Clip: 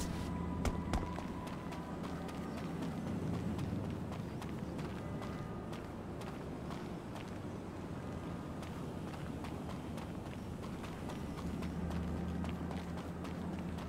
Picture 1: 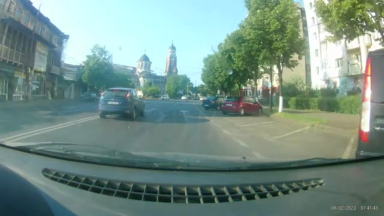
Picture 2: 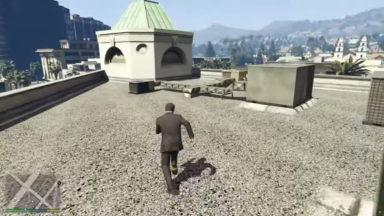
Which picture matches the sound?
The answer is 2